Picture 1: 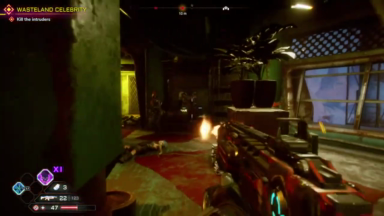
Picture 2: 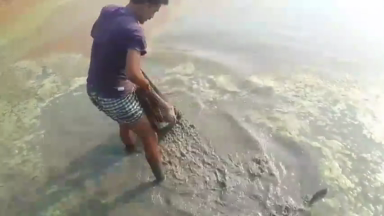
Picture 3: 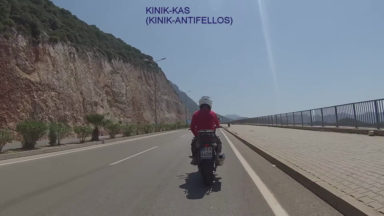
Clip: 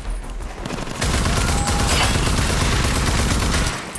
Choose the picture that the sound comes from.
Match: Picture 1